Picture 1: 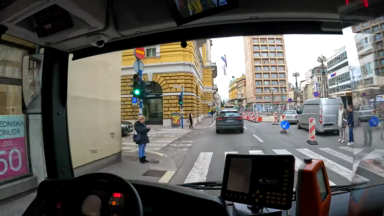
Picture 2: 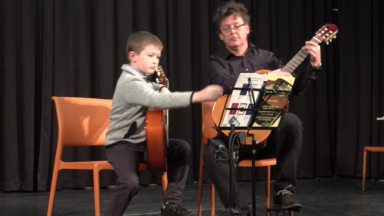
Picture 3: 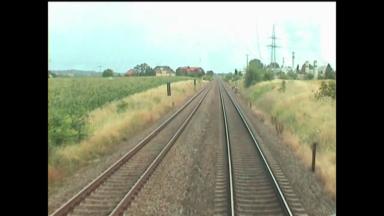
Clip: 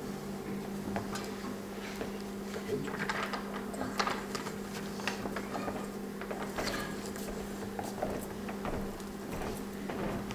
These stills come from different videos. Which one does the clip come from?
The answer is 2